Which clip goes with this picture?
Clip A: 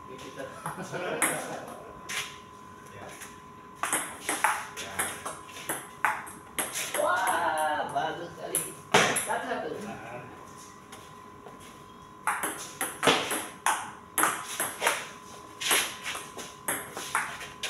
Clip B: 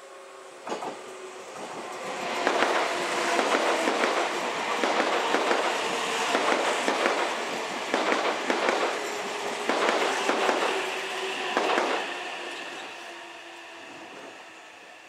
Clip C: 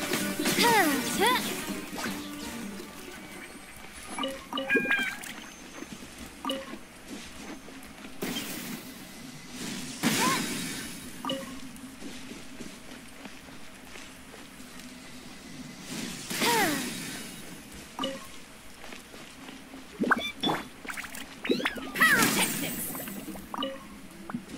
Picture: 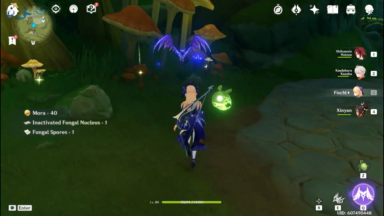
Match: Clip C